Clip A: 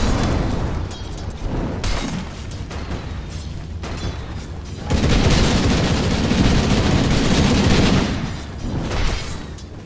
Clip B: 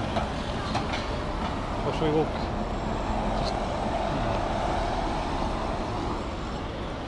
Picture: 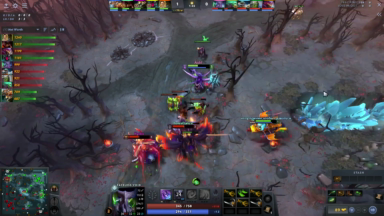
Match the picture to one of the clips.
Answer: A